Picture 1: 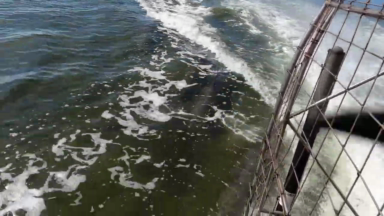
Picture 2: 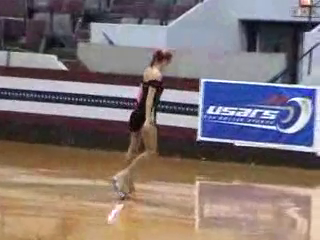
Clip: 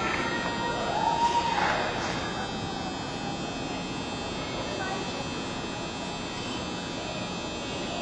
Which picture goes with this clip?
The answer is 2